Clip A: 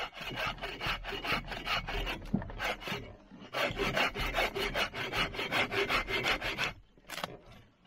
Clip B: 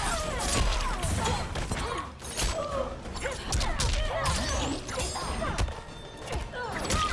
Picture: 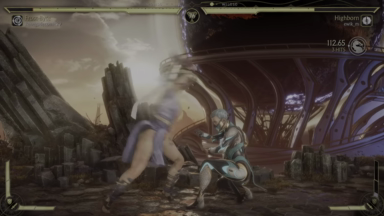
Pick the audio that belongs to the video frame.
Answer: B